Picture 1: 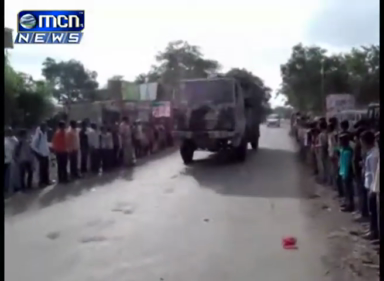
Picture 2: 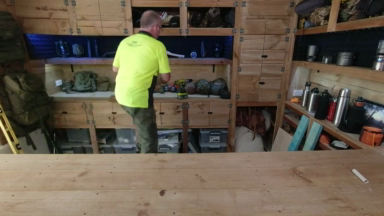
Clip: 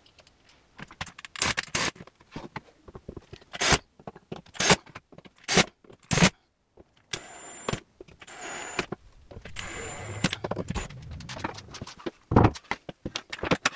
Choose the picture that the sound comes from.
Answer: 2